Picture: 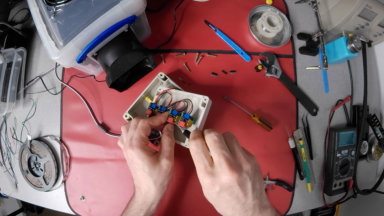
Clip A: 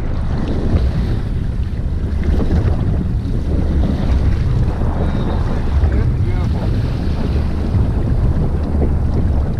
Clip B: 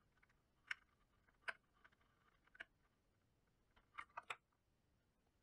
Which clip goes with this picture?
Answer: B